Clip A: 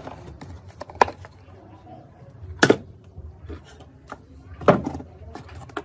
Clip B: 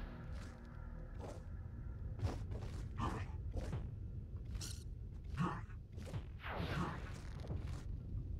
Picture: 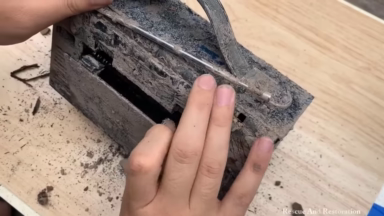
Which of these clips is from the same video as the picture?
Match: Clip A